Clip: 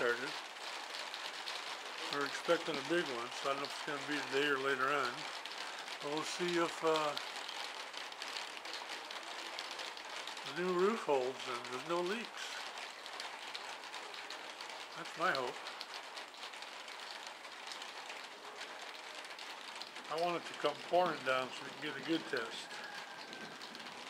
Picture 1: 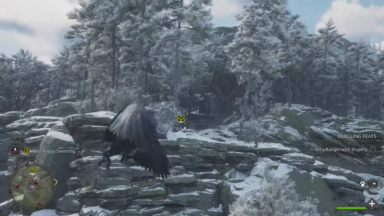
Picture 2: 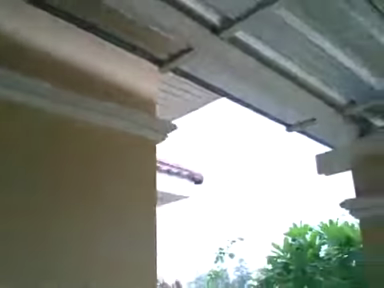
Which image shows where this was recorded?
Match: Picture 2